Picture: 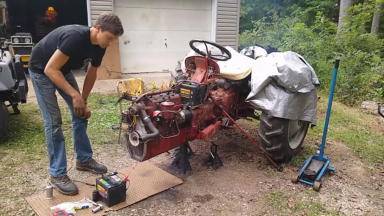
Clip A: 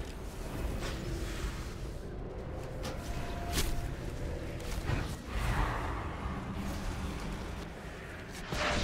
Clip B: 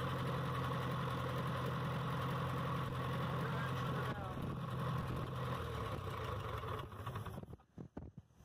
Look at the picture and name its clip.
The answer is B